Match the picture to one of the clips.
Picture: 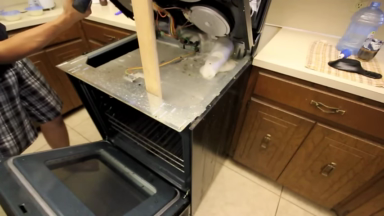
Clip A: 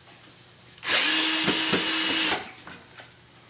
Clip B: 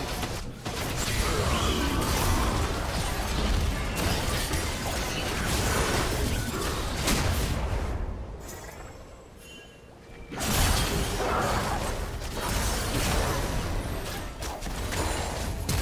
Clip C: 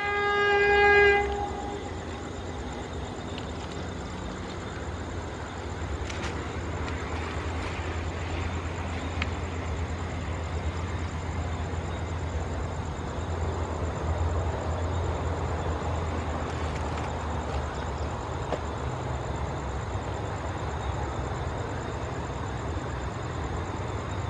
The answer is A